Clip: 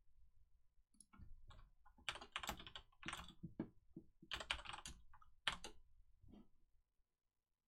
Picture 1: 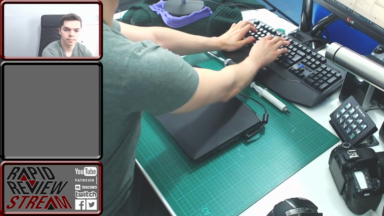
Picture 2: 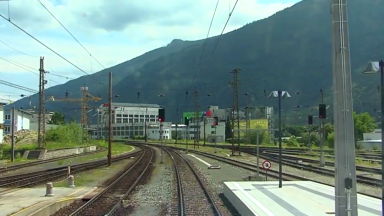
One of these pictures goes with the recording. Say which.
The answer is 1